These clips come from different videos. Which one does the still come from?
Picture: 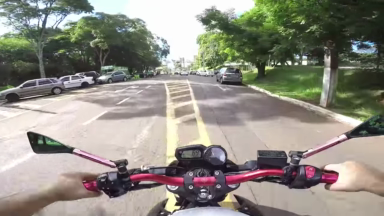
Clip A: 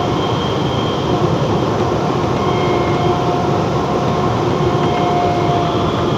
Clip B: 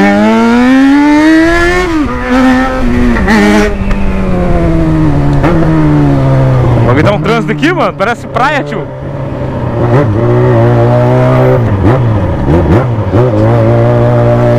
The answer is B